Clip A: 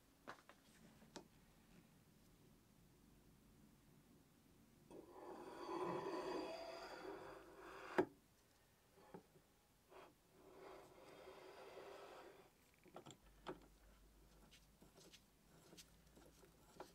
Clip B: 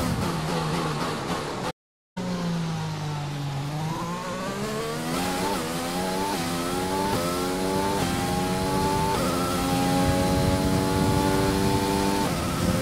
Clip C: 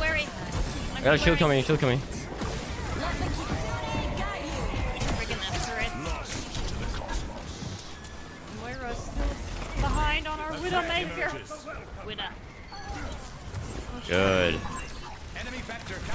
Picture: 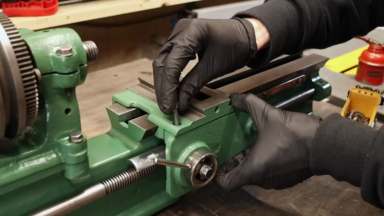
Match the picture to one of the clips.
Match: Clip A